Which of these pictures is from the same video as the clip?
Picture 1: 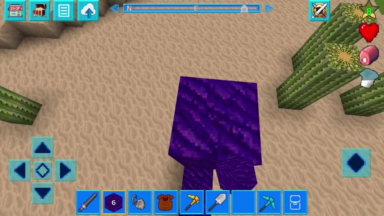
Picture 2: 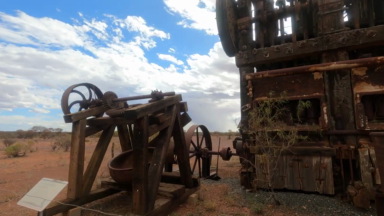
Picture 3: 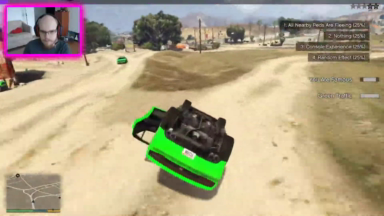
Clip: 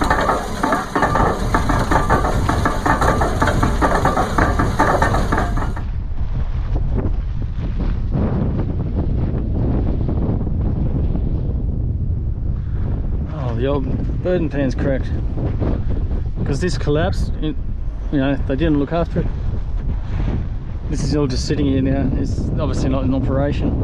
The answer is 2